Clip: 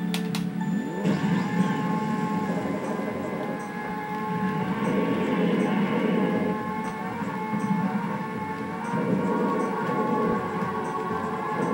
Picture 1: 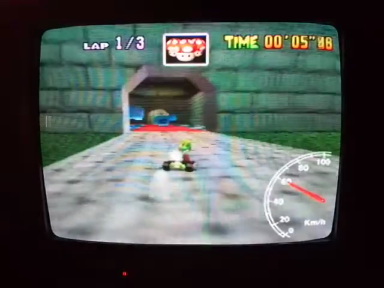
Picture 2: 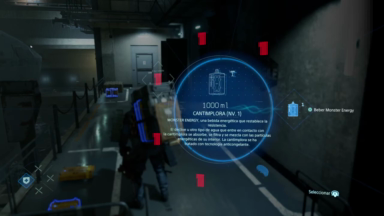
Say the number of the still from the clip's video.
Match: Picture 1